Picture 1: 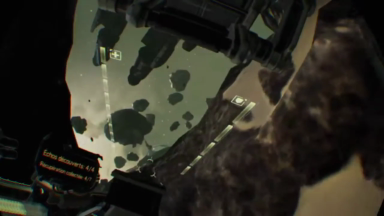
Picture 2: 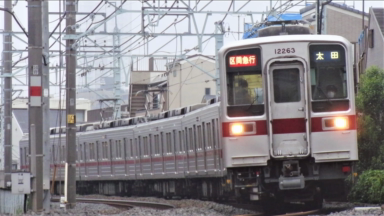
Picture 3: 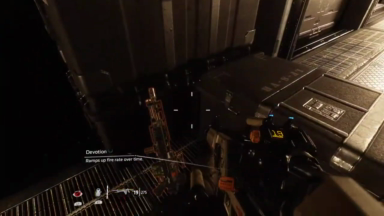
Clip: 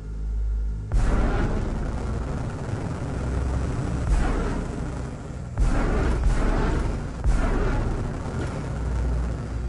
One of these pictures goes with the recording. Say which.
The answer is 1